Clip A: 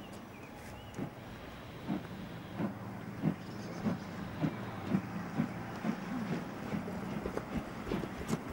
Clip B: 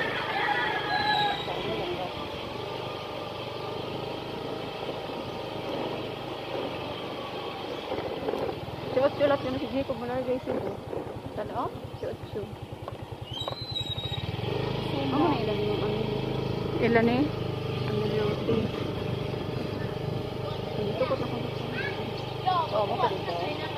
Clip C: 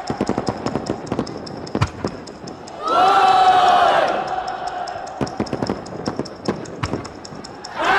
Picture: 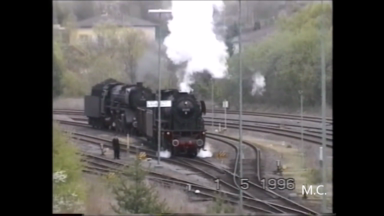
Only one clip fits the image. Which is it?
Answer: A